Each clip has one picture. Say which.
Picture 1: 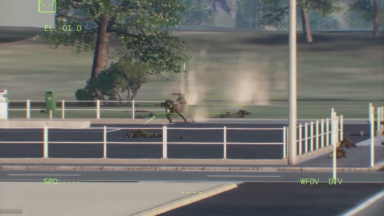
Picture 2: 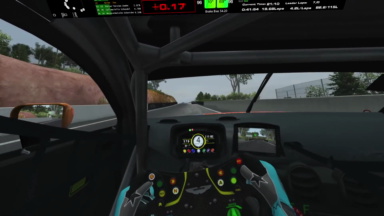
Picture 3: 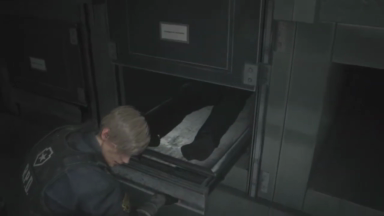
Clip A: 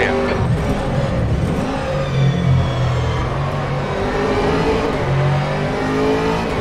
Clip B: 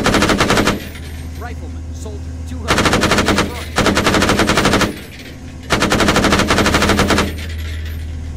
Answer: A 2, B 1